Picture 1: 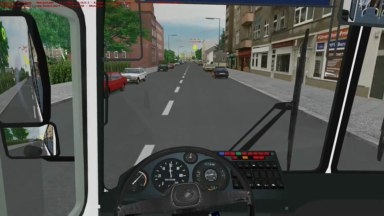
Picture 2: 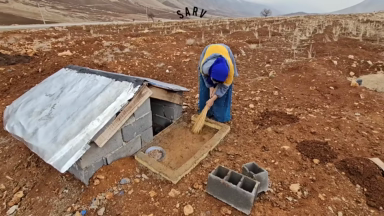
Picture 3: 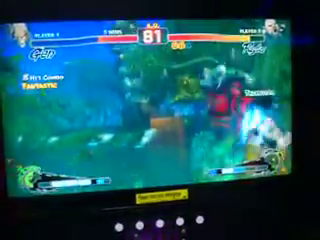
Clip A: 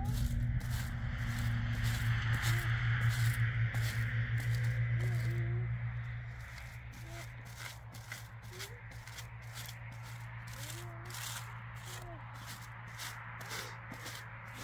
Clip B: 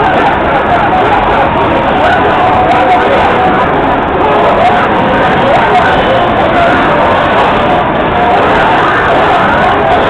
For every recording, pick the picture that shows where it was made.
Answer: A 2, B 3